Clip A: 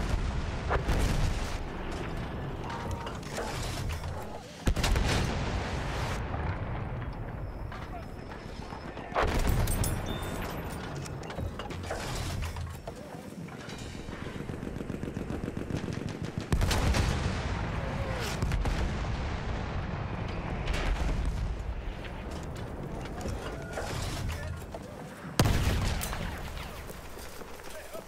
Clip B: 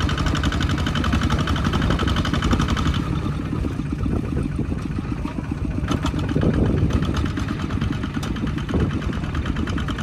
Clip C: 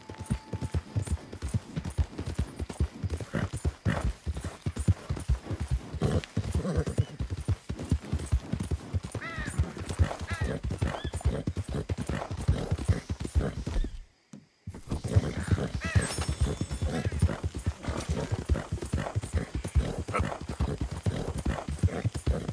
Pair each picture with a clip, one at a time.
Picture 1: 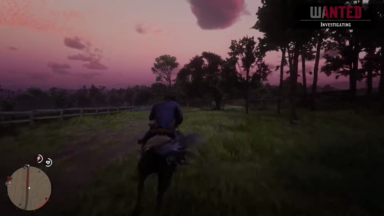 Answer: C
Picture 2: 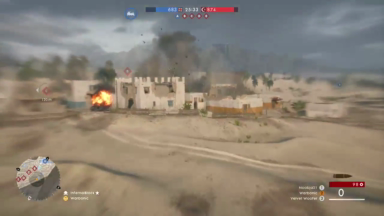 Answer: A